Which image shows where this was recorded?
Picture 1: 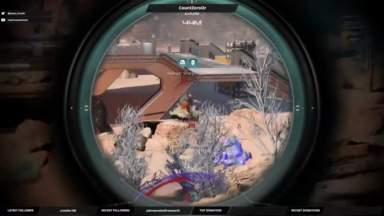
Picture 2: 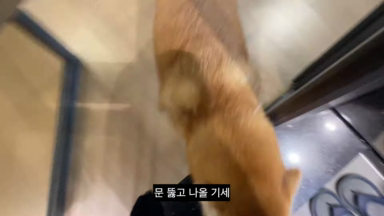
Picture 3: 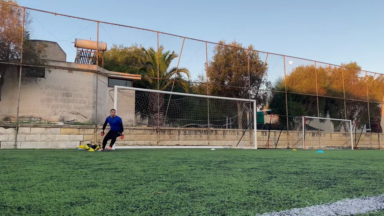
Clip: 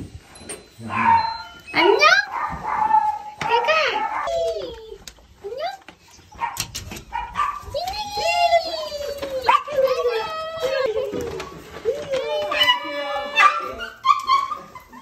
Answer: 2